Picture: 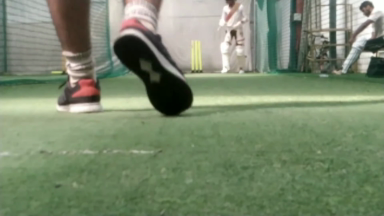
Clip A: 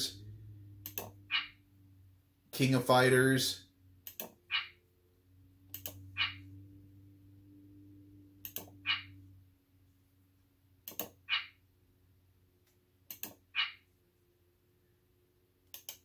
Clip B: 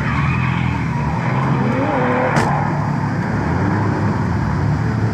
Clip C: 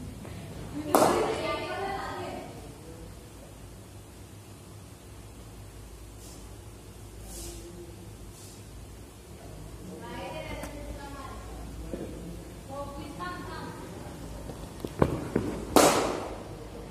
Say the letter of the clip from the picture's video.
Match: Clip C